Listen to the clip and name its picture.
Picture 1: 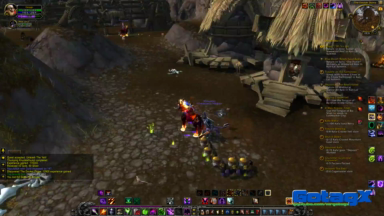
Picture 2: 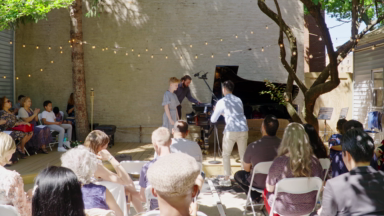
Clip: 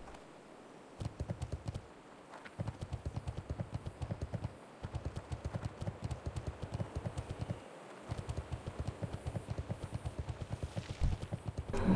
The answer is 1